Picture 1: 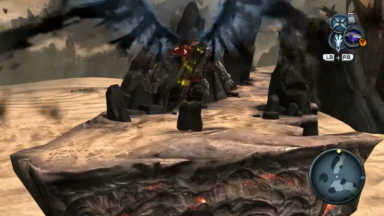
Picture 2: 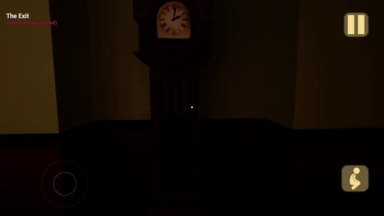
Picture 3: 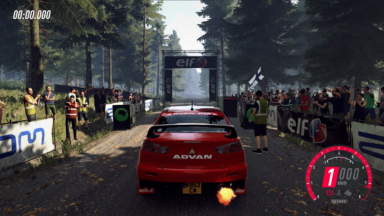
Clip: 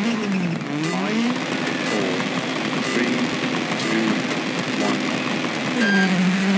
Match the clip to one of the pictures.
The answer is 3